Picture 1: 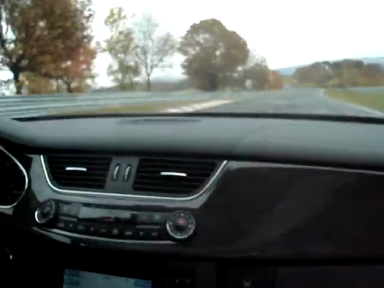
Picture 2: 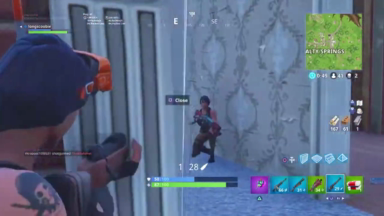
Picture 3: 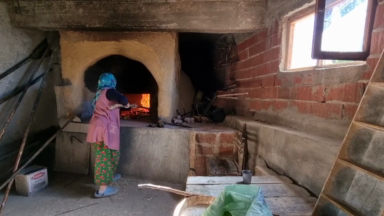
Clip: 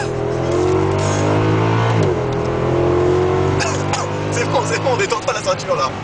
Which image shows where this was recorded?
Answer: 1